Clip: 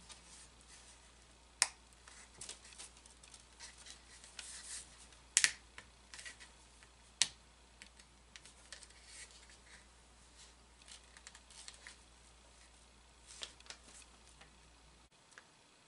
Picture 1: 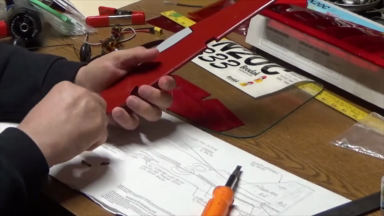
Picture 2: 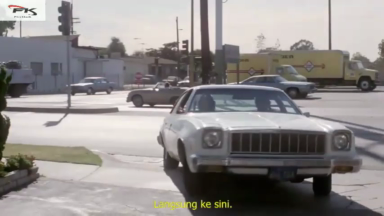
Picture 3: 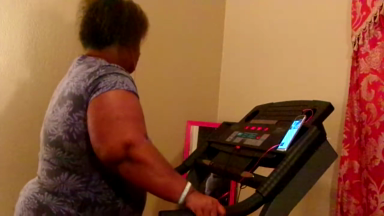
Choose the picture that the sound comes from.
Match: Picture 1